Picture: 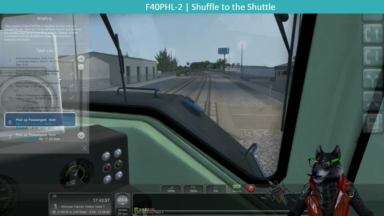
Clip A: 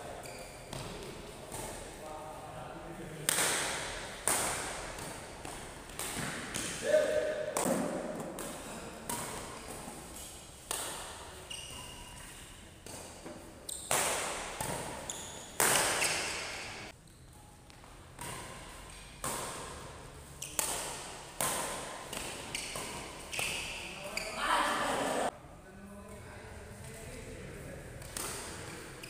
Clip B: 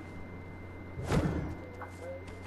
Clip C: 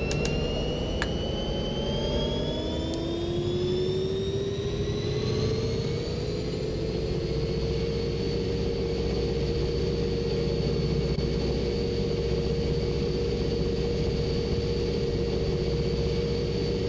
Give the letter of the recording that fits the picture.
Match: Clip C